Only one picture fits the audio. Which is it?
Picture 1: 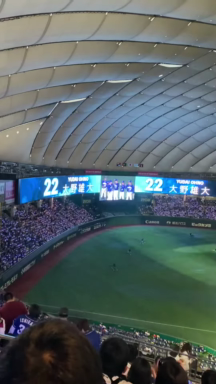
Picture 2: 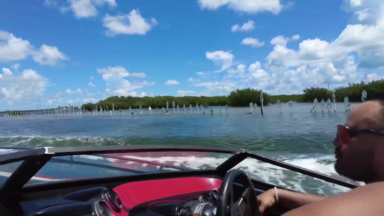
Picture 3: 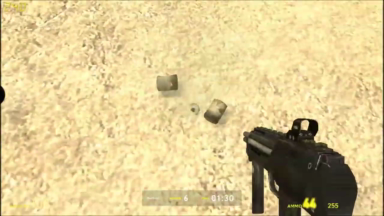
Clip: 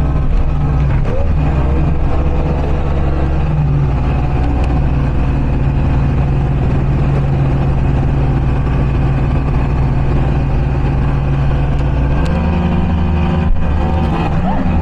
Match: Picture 2